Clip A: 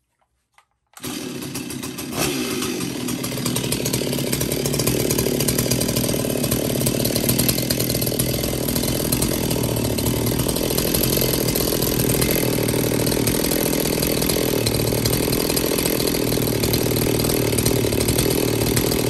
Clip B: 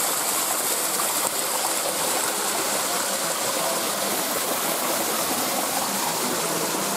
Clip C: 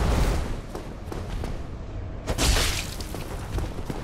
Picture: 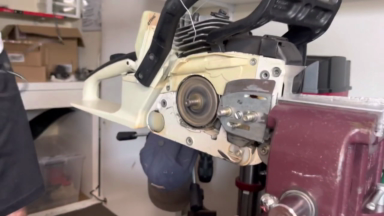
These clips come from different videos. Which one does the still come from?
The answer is A